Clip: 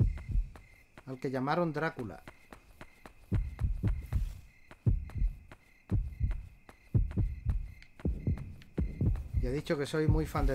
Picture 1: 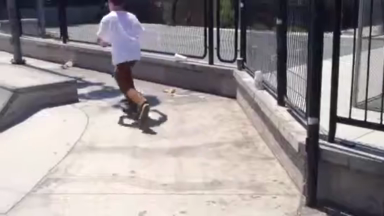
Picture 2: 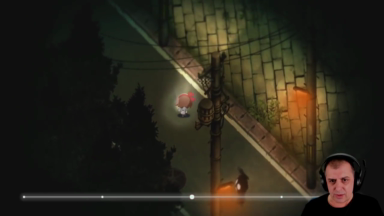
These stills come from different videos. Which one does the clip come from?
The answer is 2